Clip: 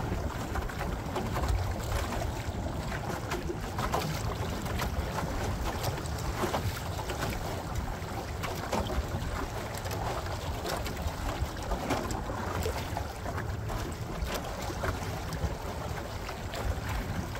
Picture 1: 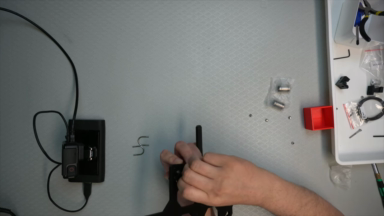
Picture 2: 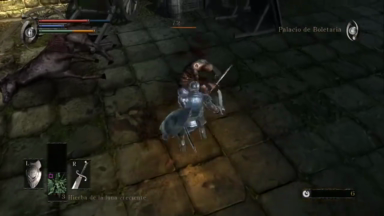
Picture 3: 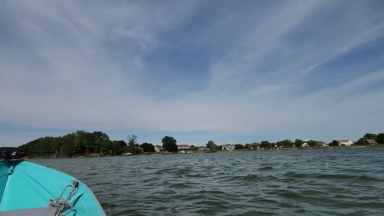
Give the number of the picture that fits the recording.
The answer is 3